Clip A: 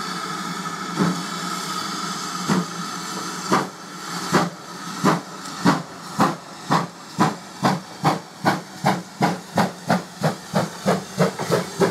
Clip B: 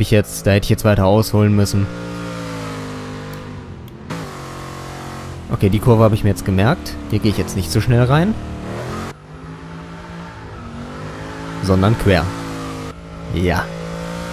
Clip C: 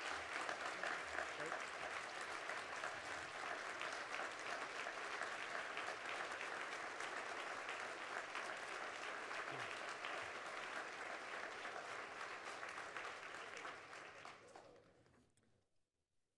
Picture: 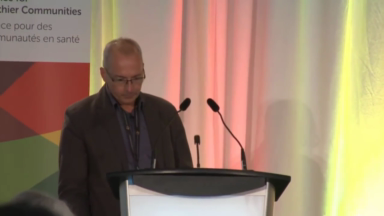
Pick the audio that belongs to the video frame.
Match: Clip C